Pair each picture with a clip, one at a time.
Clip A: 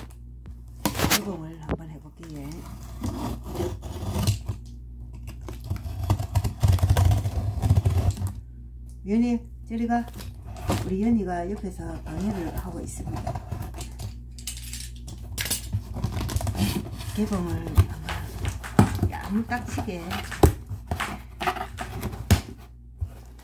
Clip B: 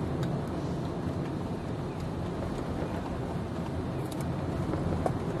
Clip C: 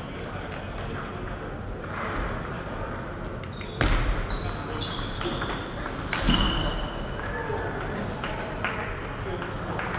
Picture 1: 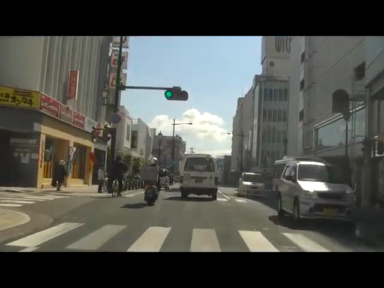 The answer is B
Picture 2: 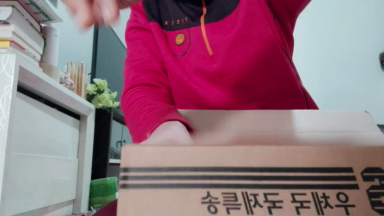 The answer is A